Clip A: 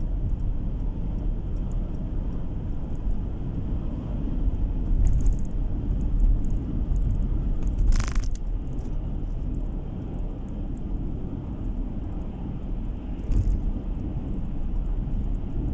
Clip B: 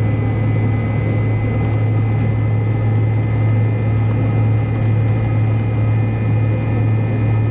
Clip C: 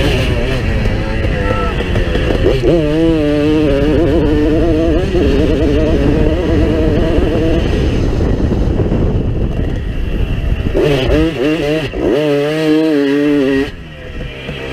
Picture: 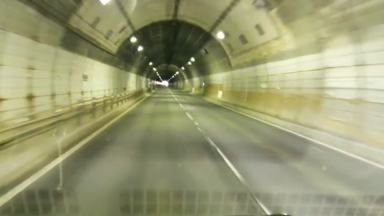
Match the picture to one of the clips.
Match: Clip A